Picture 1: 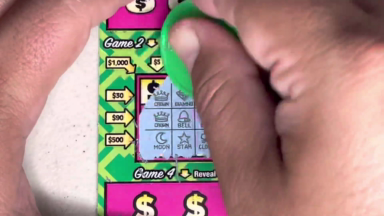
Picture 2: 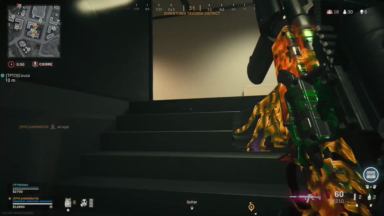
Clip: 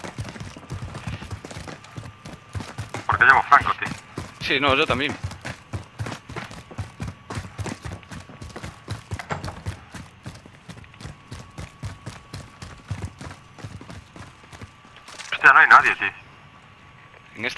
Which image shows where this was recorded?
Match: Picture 2